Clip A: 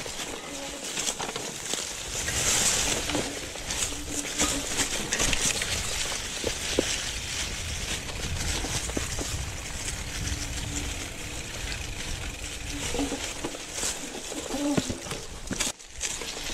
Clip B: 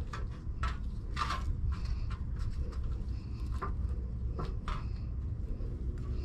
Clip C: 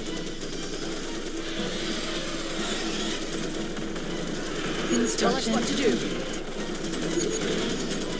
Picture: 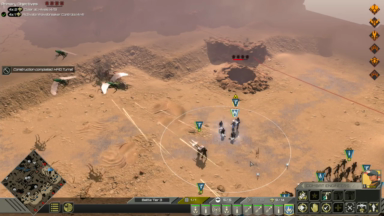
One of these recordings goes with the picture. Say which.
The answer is C